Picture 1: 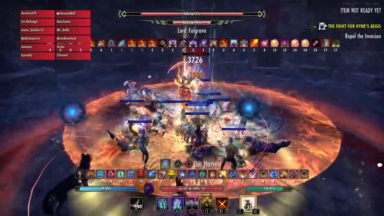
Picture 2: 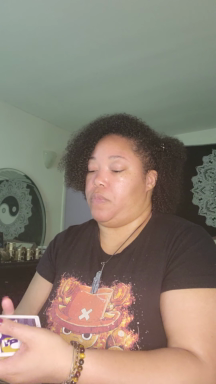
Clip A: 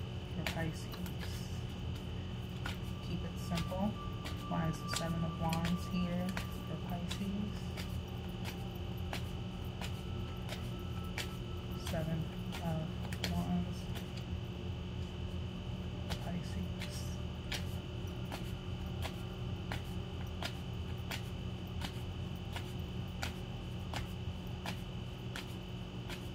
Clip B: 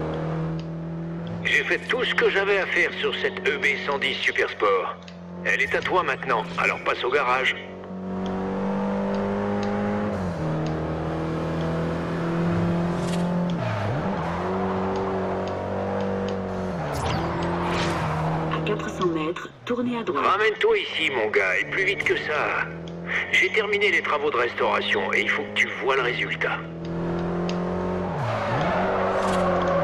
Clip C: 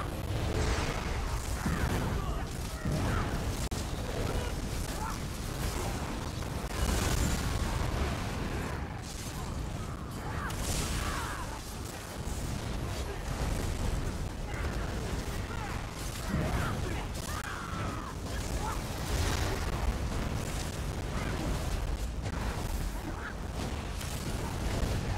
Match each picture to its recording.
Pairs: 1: C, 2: A